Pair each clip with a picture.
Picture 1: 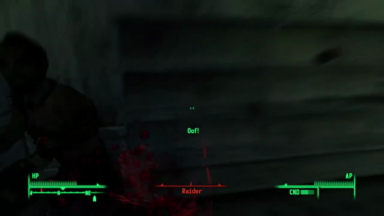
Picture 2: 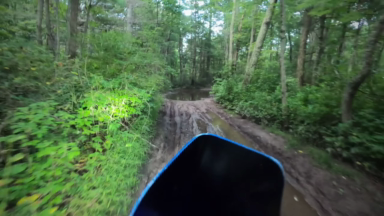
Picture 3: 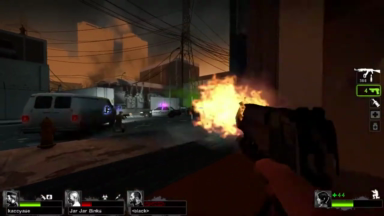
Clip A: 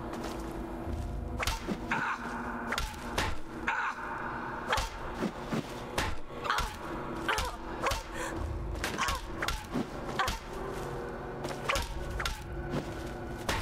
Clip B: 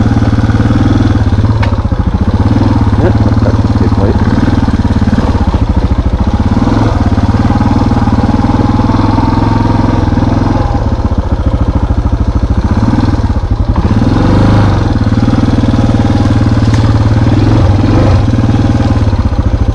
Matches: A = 1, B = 2